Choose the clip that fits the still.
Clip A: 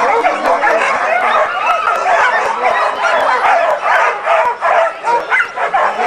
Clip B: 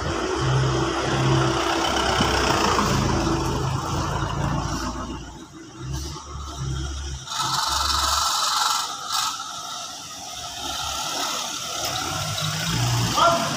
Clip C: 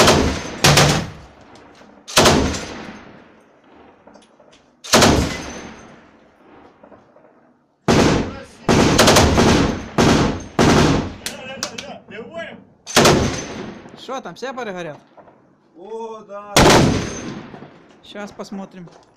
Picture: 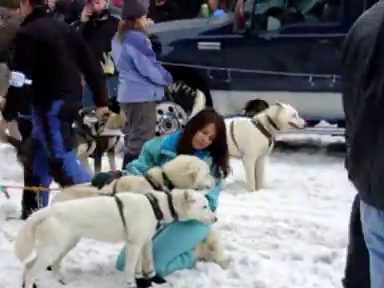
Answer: A